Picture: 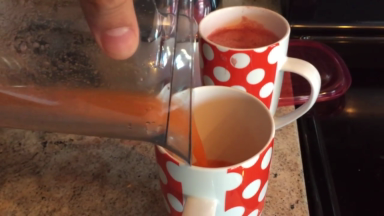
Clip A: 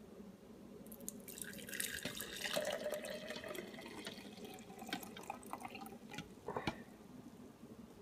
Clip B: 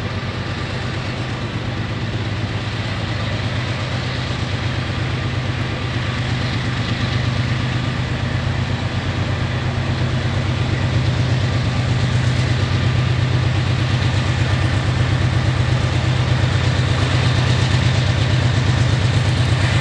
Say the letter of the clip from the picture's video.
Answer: A